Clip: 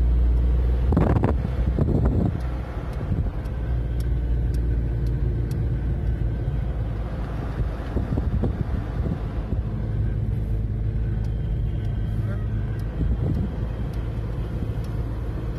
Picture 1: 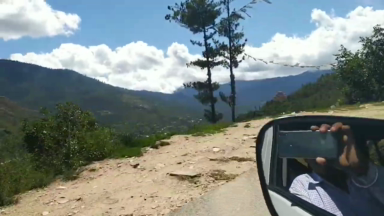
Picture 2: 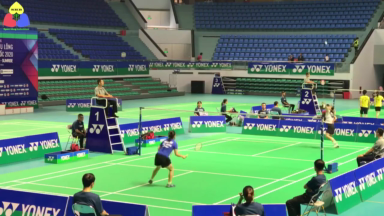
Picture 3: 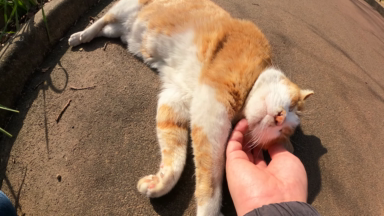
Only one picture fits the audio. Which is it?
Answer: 1